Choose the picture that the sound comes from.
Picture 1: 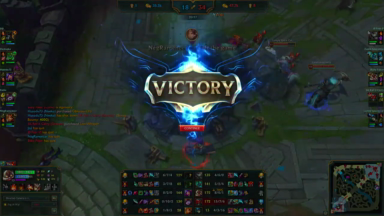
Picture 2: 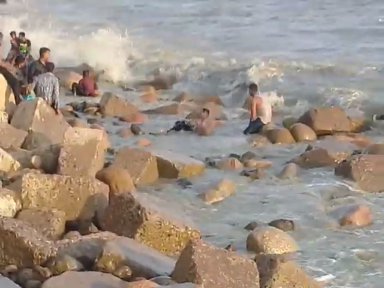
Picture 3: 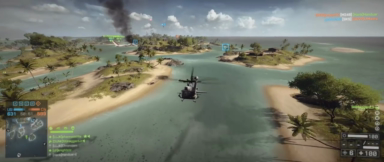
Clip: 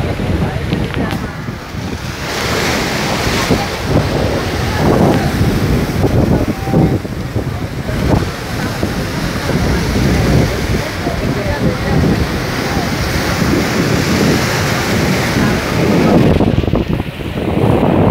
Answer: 2